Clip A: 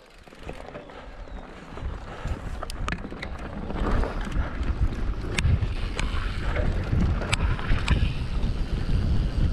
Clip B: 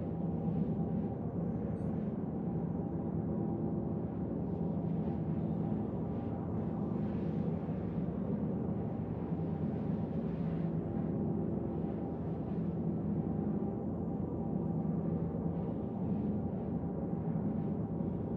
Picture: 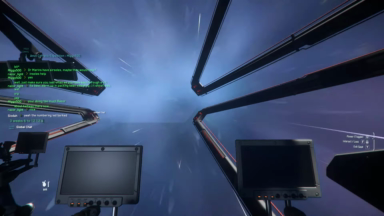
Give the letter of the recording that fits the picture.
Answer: B